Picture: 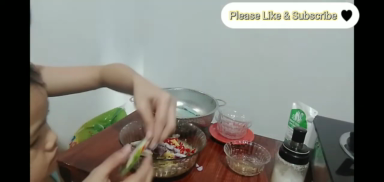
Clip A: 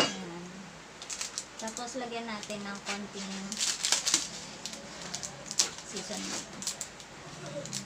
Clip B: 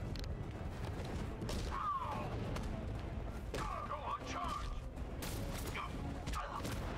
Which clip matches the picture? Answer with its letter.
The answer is A